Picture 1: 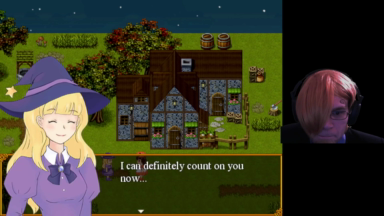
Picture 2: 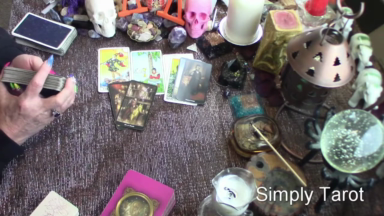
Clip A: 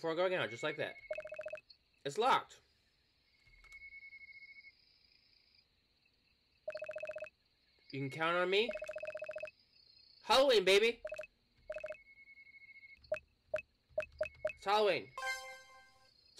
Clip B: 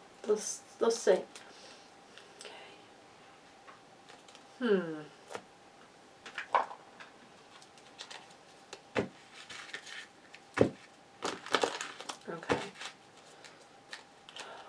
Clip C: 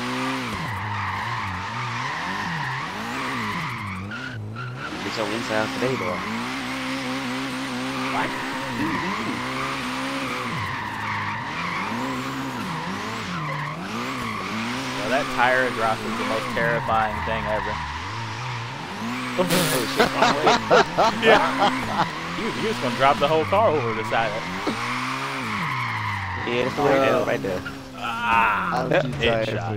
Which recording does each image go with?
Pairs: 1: A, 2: B